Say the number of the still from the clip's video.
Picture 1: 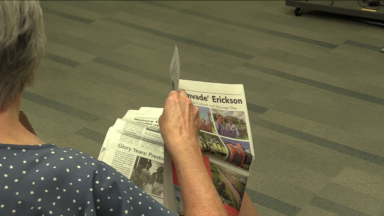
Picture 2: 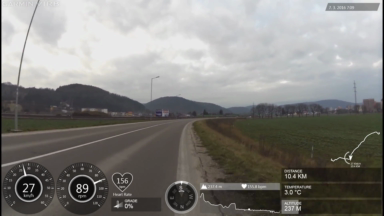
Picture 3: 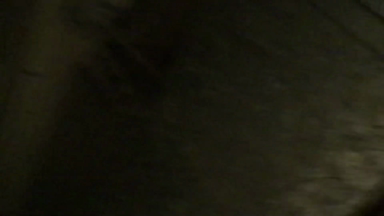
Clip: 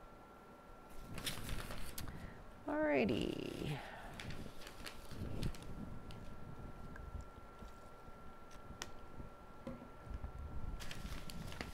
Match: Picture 1